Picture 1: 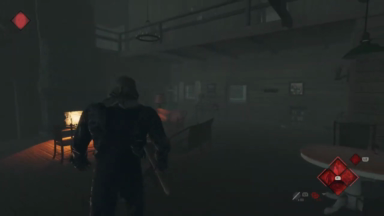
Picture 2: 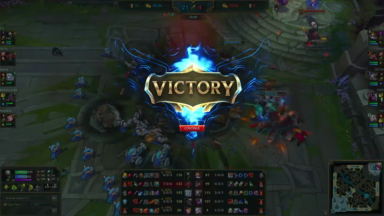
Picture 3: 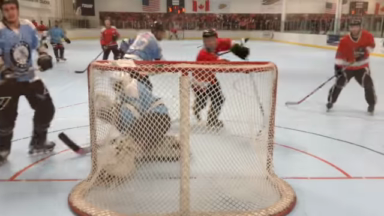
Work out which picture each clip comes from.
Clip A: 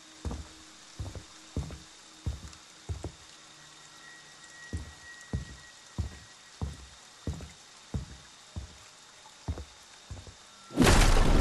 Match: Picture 1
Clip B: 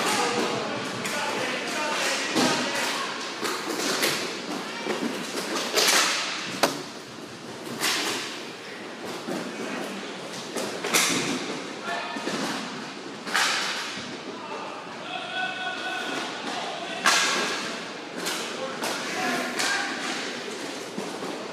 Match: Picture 3